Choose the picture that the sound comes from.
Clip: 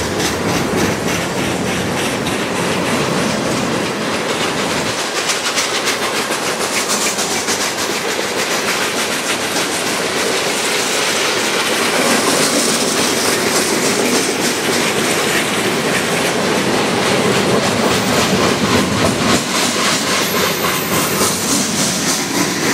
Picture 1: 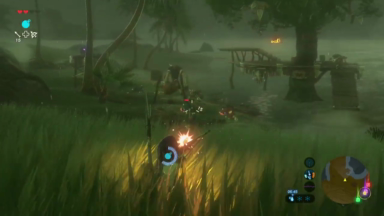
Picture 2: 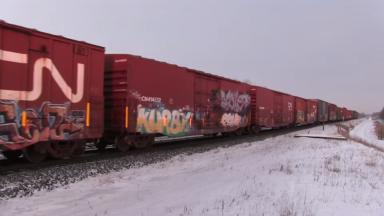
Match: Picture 2